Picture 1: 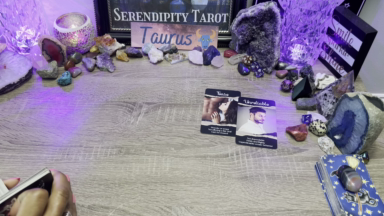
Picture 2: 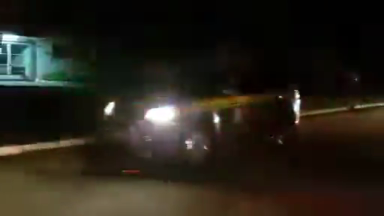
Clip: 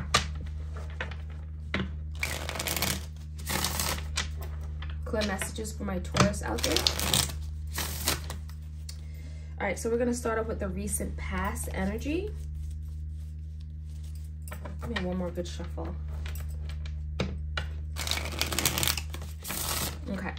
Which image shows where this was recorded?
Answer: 1